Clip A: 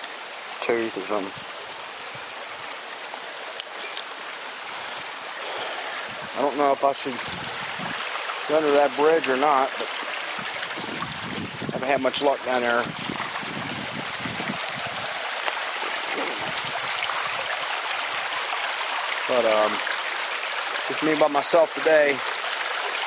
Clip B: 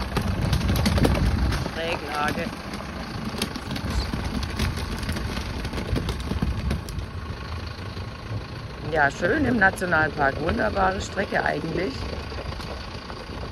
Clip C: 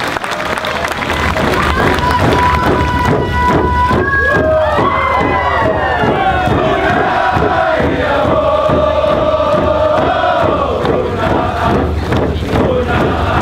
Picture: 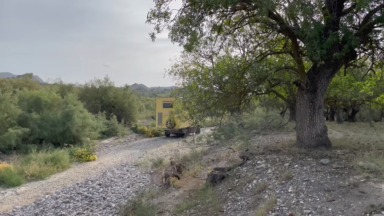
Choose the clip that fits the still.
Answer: B